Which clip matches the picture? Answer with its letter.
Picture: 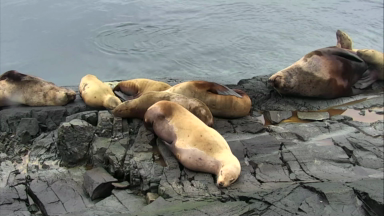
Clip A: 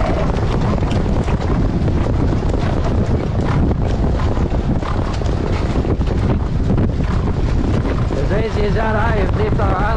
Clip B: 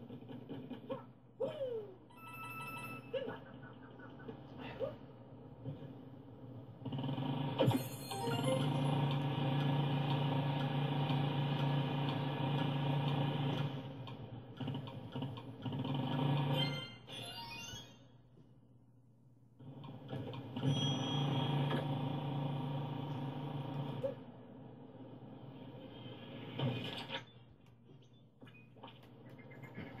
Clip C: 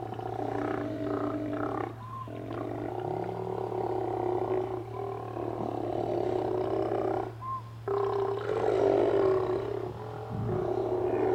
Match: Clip C